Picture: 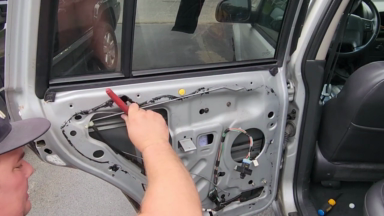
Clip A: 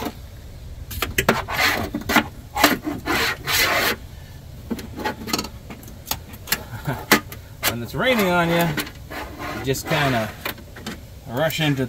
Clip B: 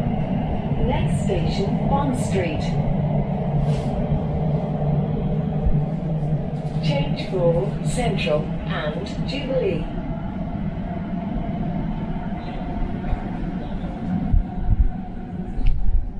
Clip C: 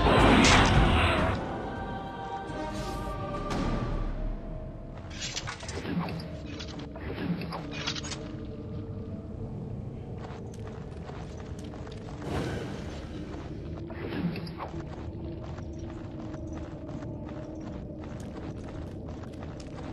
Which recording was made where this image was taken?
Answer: A